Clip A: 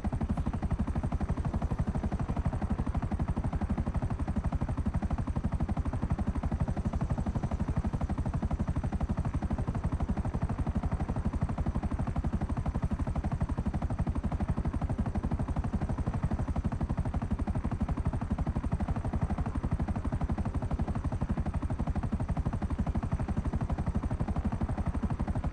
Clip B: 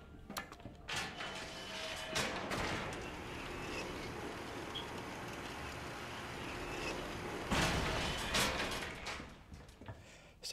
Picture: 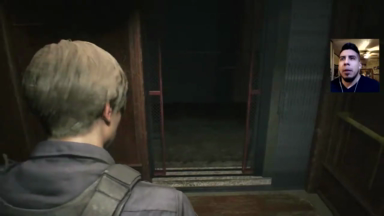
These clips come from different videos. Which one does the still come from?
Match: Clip B